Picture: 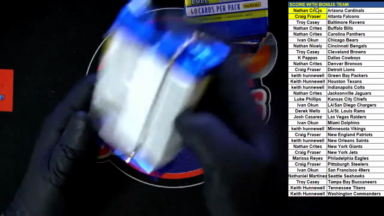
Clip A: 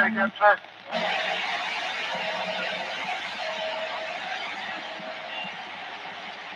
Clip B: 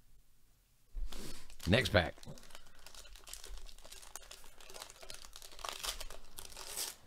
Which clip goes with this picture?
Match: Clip B